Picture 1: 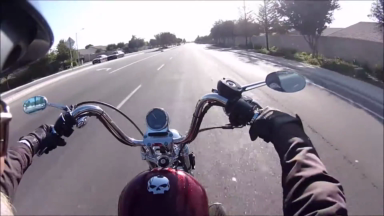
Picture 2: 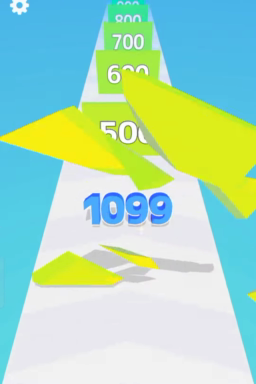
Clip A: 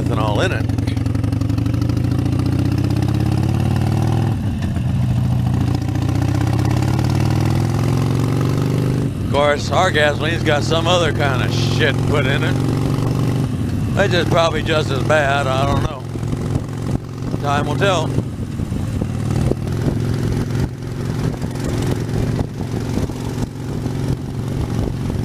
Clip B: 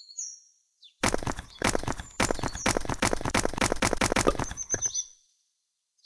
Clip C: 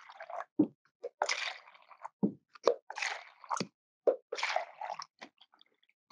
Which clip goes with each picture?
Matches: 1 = A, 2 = B